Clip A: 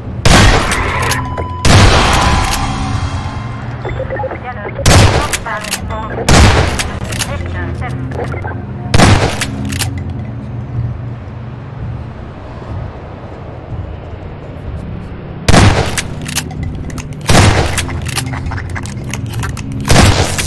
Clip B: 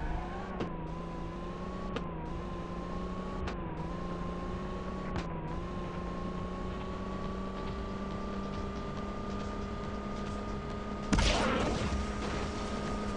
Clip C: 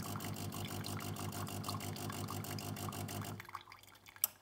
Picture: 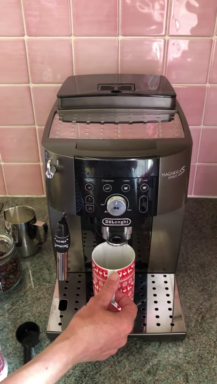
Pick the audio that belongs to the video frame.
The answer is C